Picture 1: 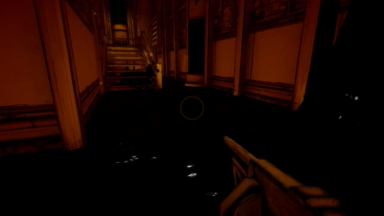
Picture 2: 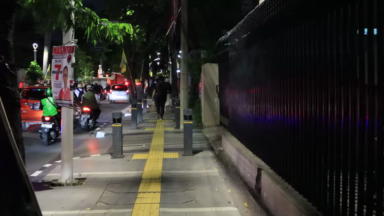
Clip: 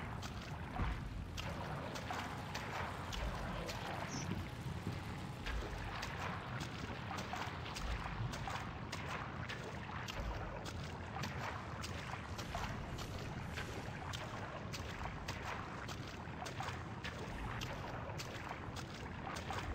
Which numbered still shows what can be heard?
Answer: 1